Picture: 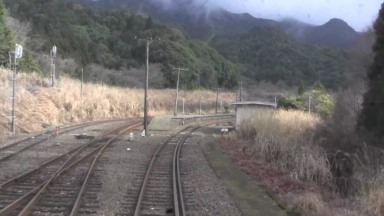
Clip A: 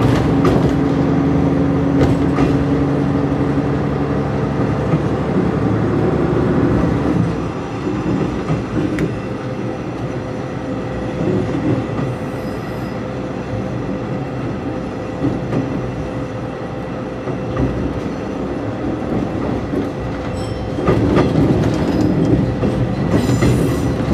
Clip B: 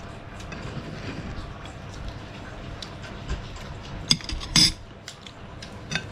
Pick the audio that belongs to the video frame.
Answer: A